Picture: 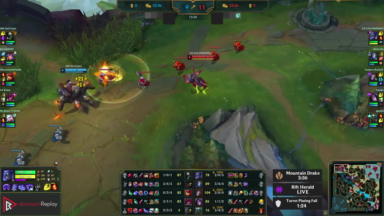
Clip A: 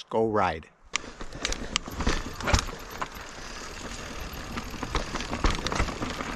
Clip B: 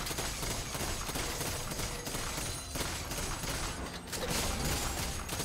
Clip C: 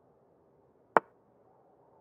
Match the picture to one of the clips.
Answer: B